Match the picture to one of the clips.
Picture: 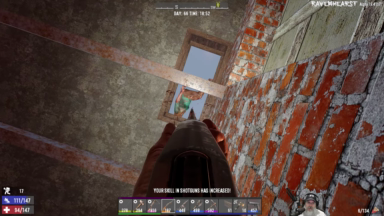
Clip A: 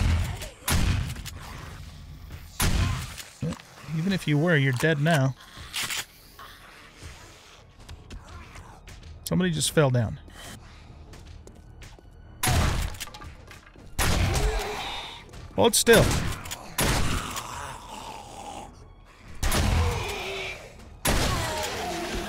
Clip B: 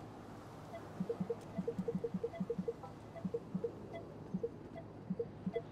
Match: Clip A